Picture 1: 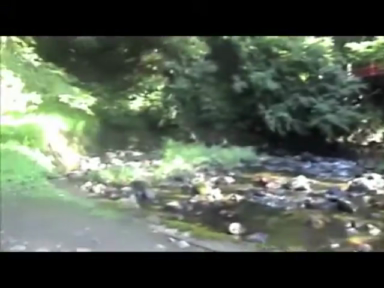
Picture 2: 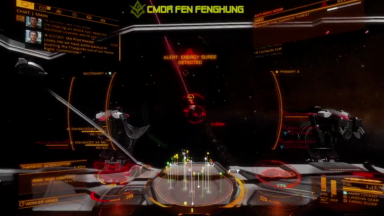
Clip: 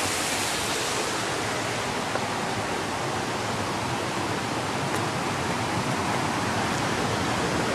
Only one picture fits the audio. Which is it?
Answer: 1